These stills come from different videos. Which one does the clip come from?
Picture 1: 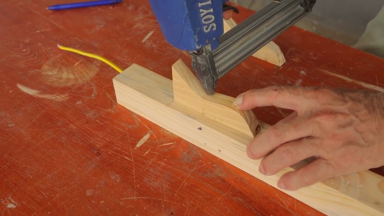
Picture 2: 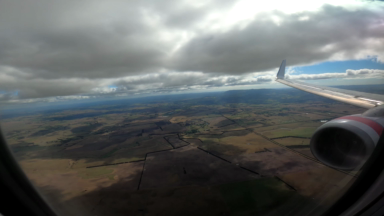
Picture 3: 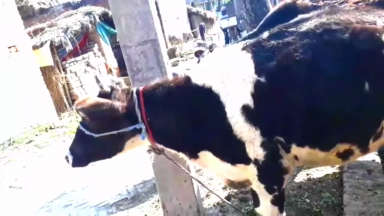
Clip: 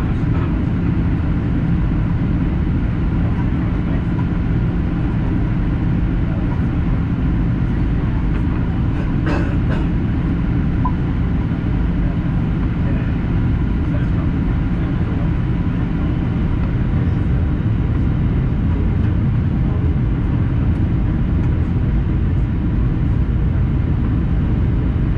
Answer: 2